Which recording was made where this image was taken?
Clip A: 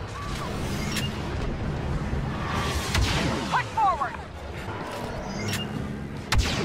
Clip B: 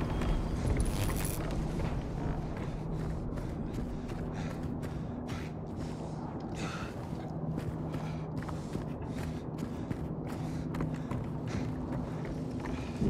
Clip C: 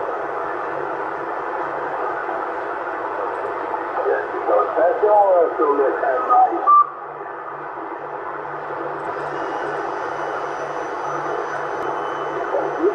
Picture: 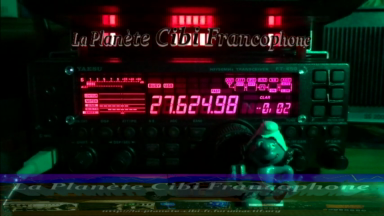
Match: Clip C